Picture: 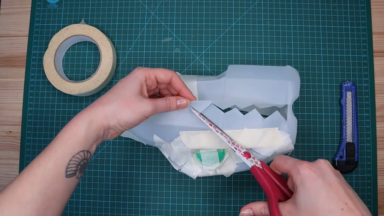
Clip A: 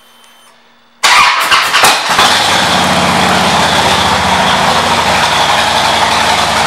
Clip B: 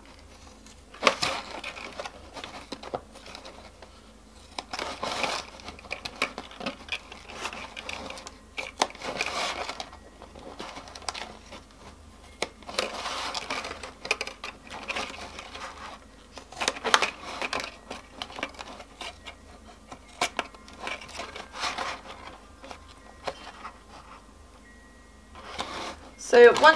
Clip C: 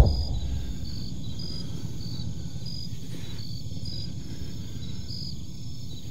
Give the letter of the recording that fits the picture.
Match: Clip B